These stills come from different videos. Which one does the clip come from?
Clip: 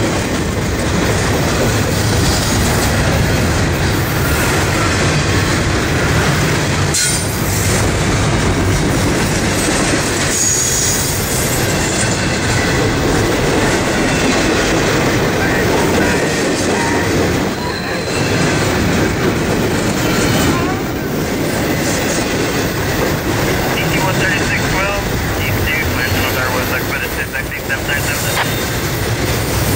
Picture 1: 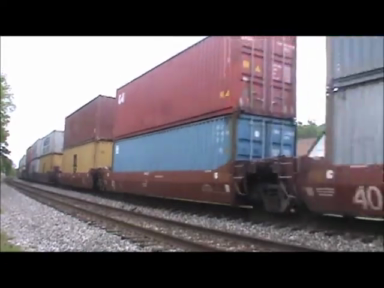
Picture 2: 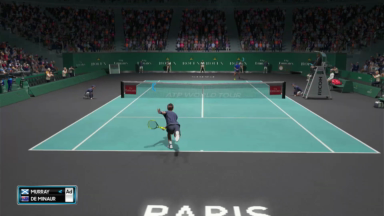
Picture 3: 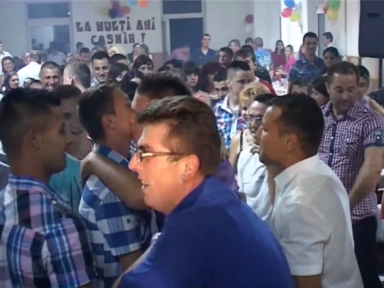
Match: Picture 1